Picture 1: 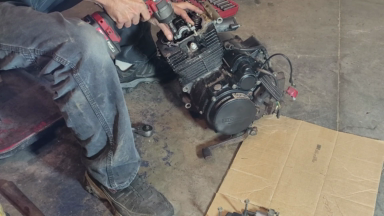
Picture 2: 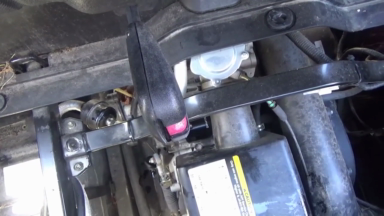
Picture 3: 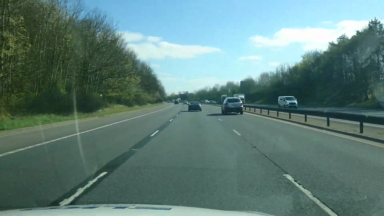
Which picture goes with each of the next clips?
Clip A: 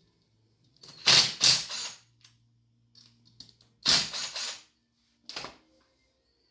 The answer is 1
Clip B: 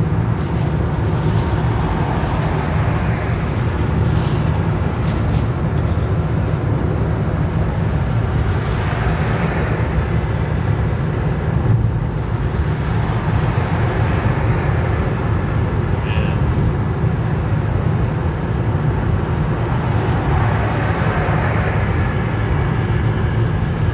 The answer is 3